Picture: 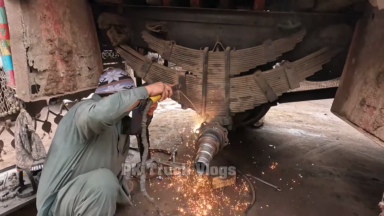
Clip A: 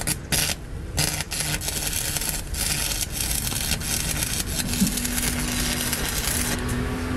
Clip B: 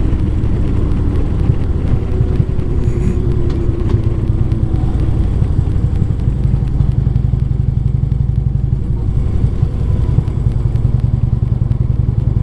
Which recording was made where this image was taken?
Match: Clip A